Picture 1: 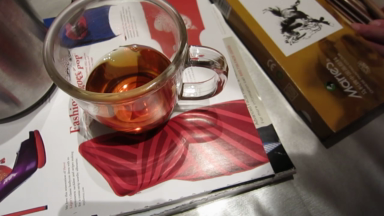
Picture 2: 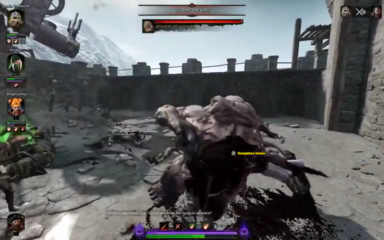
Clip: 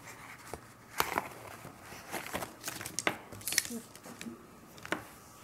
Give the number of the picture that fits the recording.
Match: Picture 1